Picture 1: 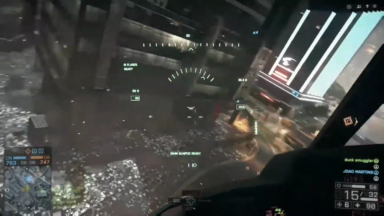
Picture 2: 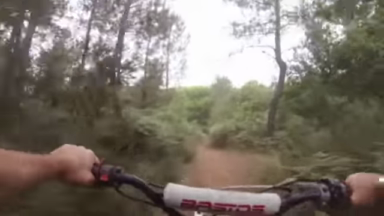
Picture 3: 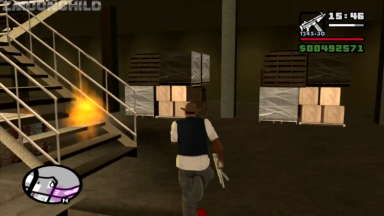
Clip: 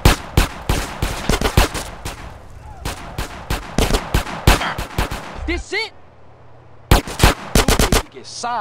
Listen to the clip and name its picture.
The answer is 3